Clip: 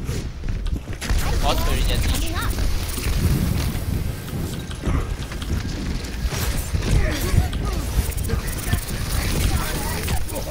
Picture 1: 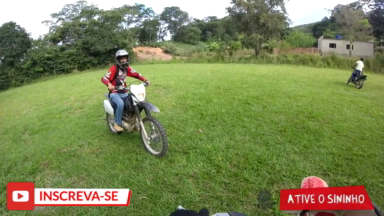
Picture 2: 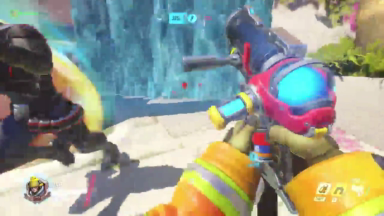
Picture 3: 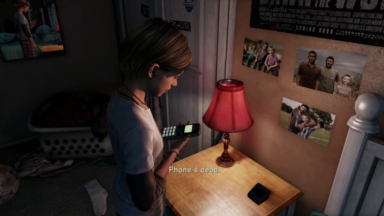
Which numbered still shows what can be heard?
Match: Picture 2